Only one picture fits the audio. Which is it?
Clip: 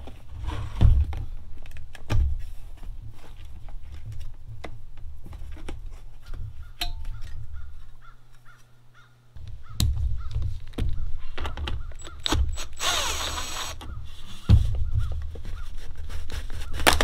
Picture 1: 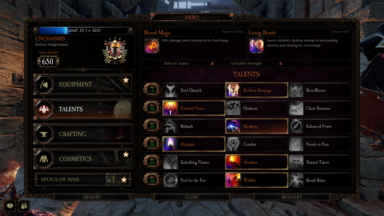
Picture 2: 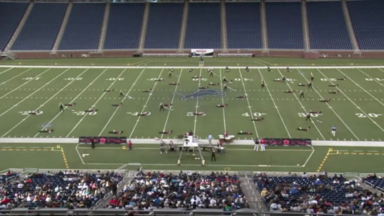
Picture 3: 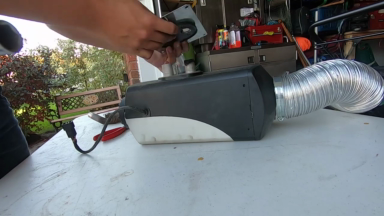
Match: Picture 3